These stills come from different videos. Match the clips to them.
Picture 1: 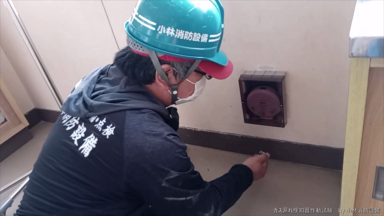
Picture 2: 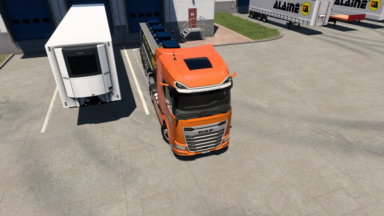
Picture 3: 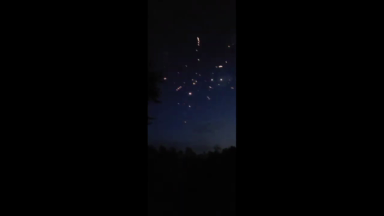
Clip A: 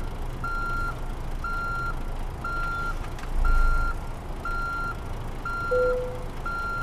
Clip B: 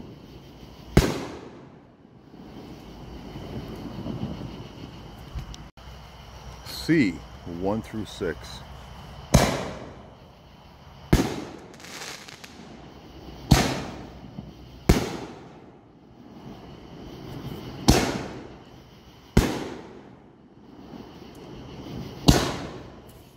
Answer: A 2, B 3